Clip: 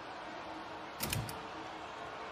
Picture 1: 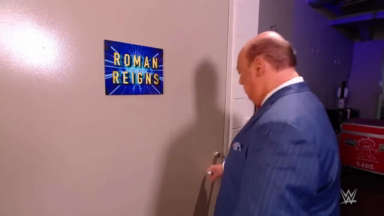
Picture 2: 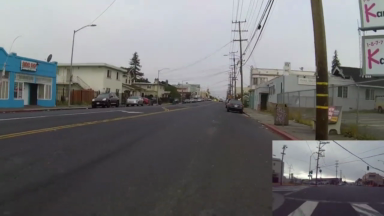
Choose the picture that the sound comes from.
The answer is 1